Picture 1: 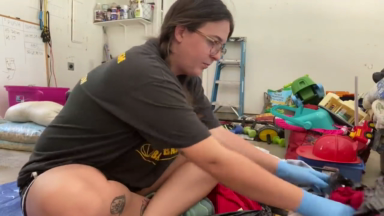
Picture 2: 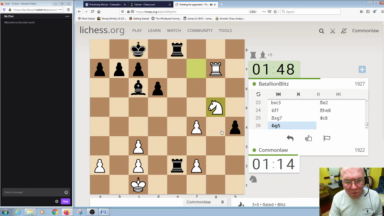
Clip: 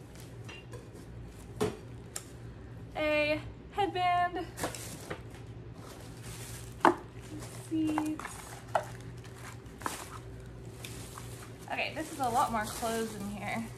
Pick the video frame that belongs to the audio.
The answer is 1